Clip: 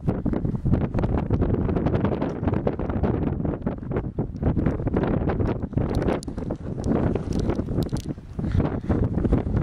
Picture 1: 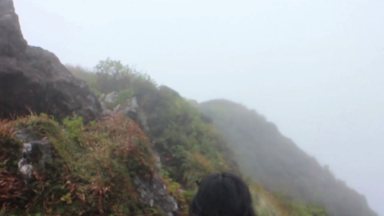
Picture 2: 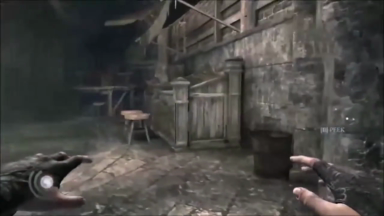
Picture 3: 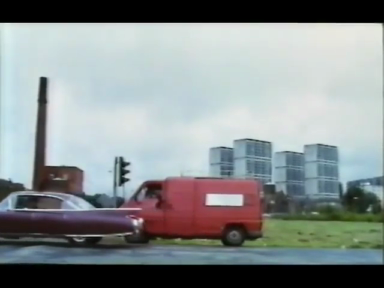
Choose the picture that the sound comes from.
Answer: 1